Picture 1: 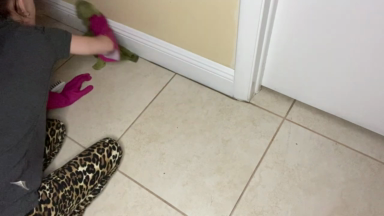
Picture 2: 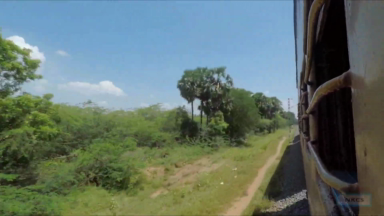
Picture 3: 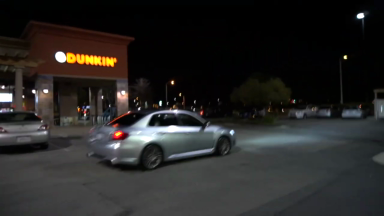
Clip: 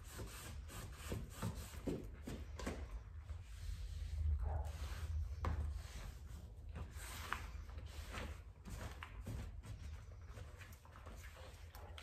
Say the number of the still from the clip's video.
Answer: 1